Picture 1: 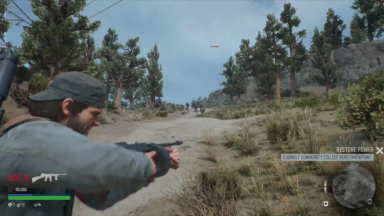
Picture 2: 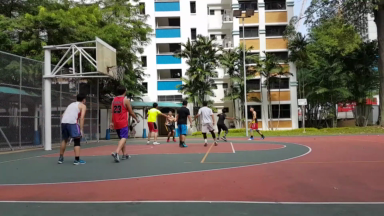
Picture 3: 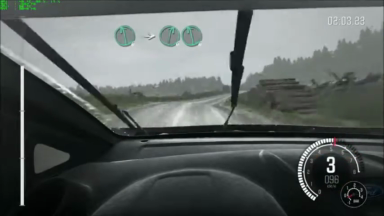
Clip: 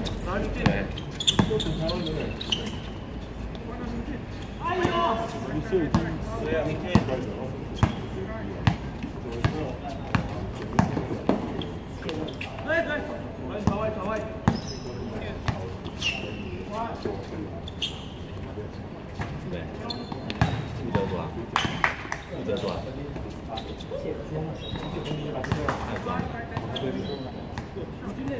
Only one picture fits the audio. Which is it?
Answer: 2